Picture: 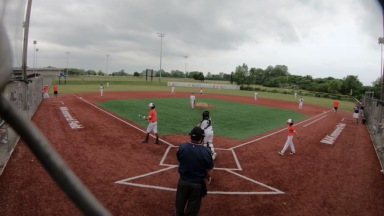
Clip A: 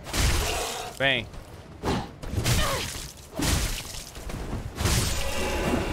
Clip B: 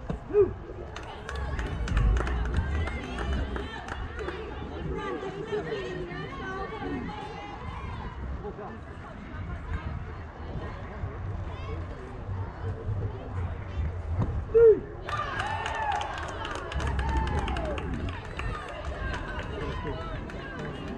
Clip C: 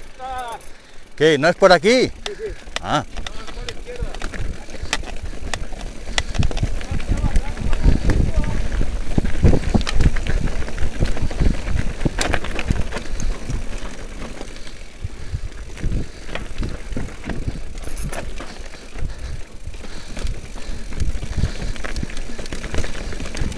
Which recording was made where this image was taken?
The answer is B